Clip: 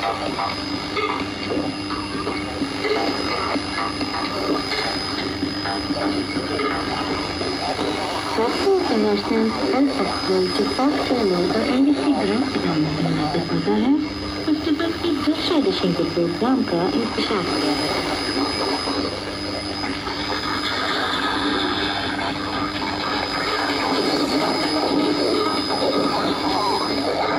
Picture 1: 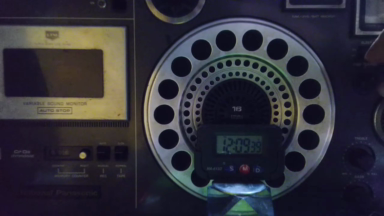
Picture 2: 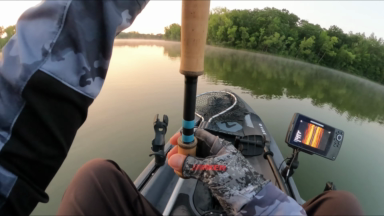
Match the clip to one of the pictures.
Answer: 1